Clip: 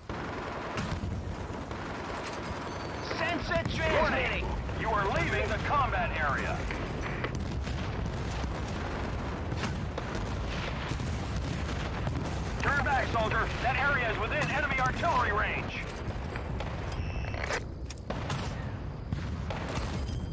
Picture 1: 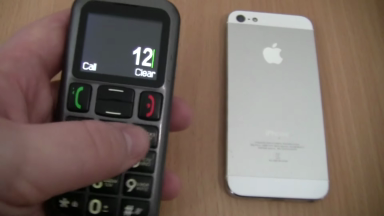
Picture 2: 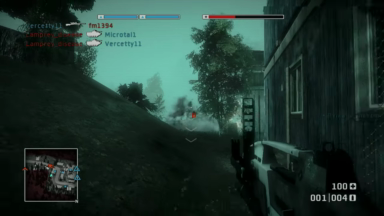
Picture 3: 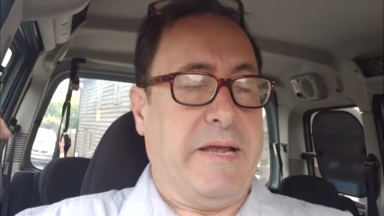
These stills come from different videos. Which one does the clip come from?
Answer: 2